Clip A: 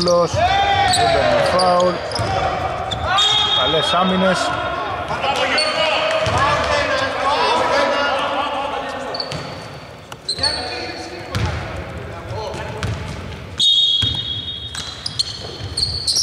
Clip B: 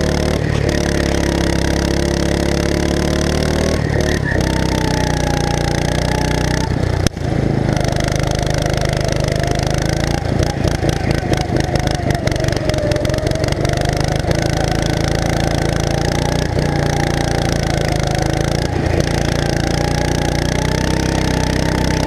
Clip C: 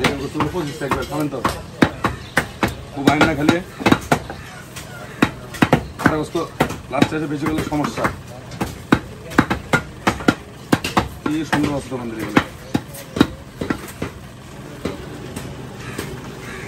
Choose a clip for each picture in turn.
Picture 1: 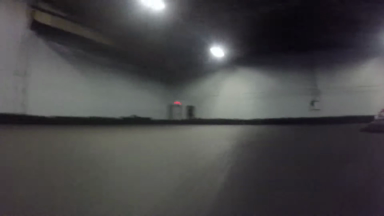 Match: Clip B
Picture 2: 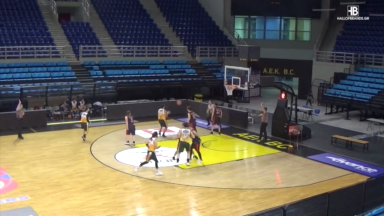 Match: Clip A